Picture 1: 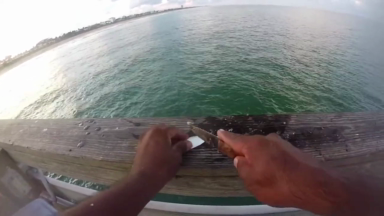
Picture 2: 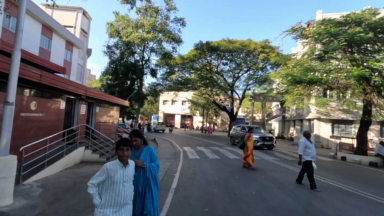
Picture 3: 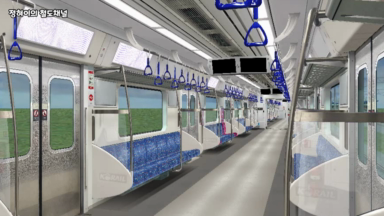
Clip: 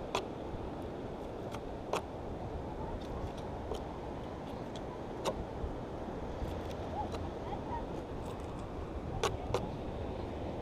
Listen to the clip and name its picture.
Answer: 1